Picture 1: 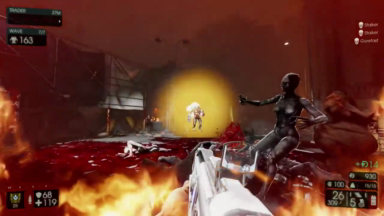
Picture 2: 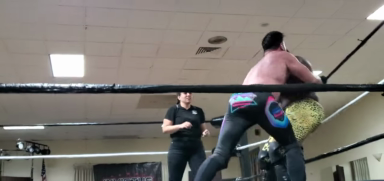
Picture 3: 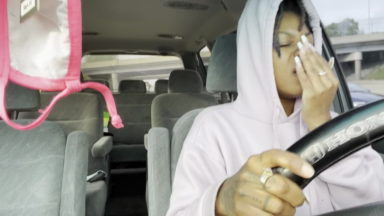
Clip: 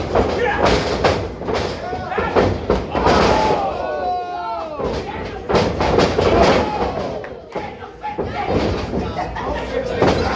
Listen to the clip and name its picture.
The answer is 2